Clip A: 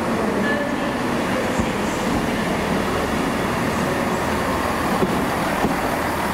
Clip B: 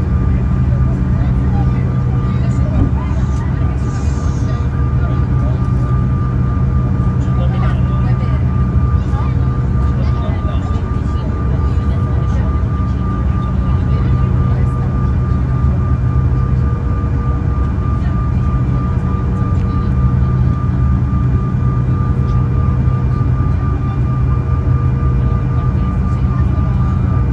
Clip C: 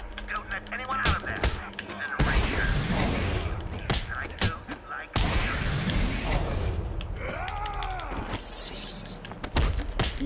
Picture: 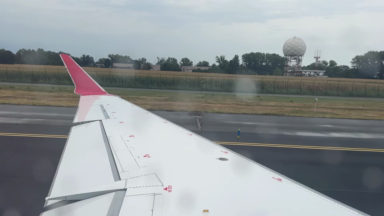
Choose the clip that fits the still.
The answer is B